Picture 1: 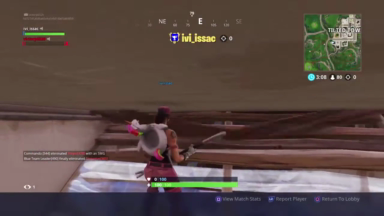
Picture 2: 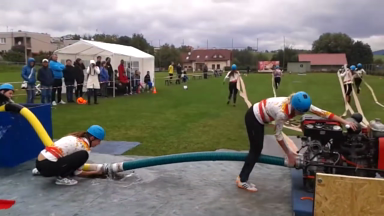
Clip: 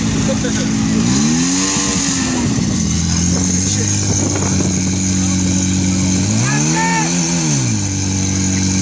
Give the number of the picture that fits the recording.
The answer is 2